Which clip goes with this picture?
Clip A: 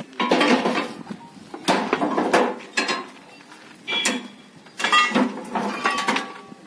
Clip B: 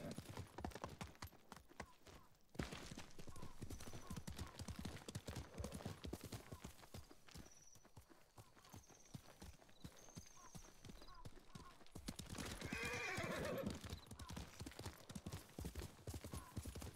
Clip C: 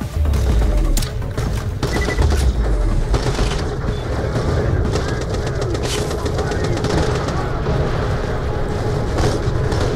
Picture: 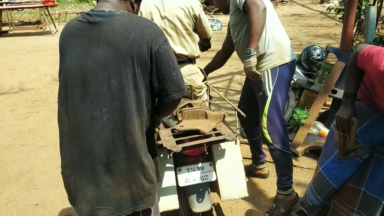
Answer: A